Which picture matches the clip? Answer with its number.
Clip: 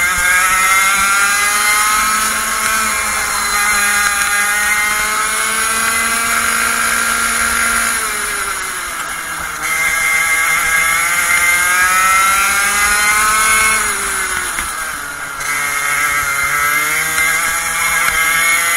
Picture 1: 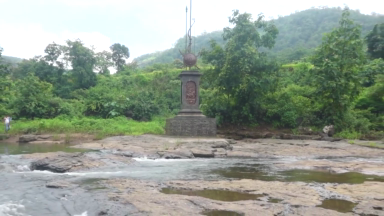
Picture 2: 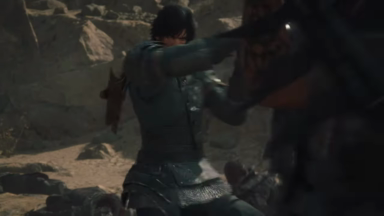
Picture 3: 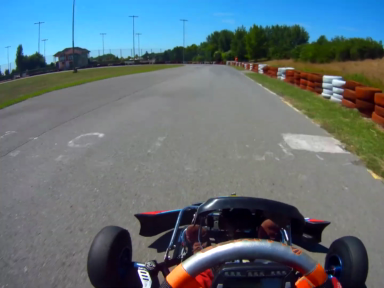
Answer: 3